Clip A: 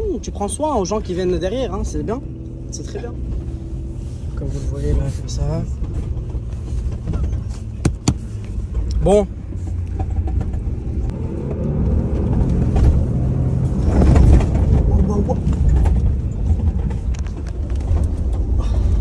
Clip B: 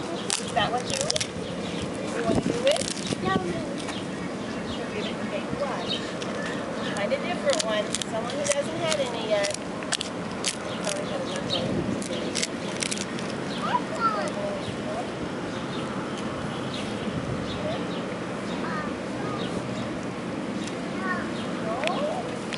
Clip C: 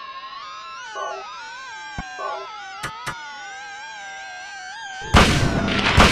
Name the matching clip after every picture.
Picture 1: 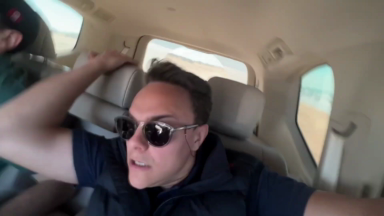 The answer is A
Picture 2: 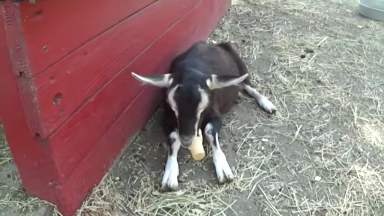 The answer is B